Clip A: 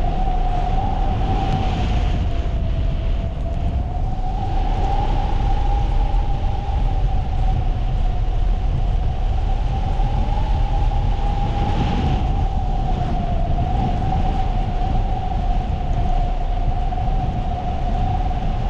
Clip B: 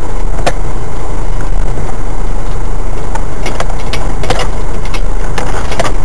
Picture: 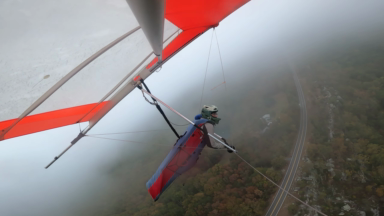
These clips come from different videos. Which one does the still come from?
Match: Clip A